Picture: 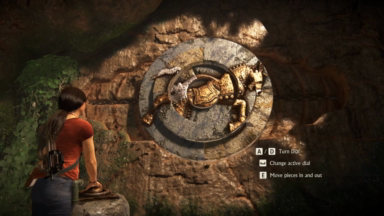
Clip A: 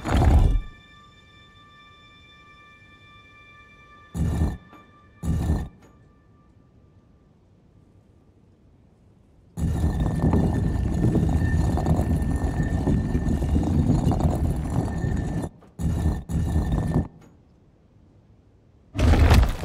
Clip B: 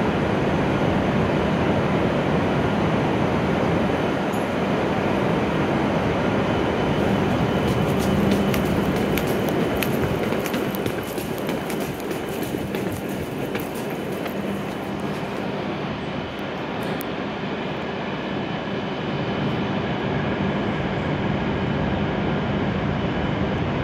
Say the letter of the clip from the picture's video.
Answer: A